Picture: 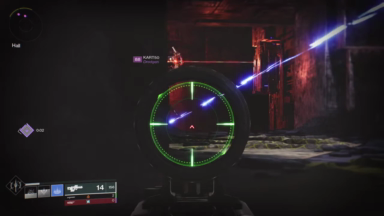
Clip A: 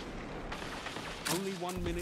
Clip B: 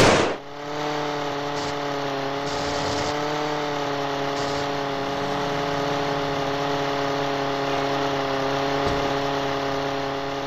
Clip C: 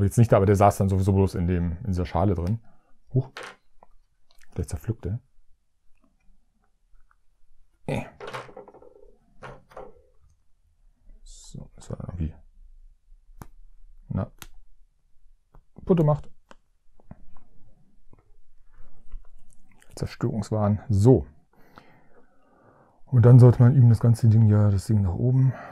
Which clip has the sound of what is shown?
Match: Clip A